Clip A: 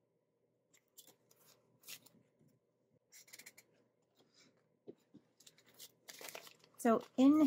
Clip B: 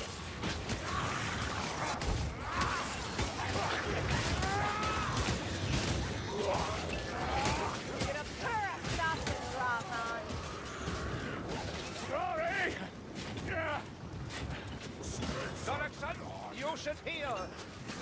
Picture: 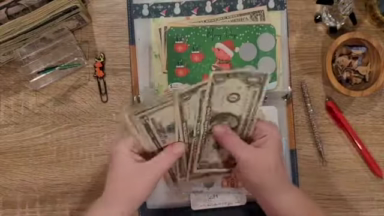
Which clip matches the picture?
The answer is A